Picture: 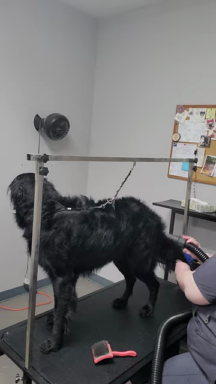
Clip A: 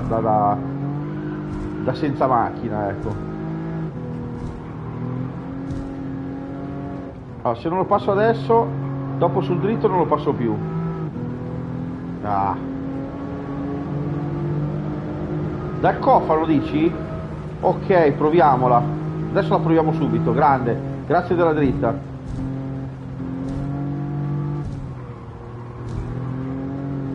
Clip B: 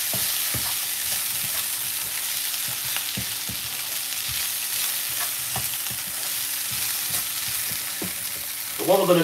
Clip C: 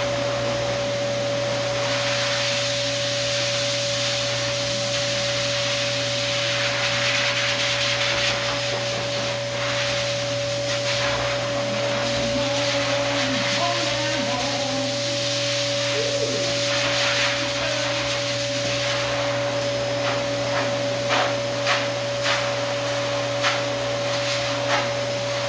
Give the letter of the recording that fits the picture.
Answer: C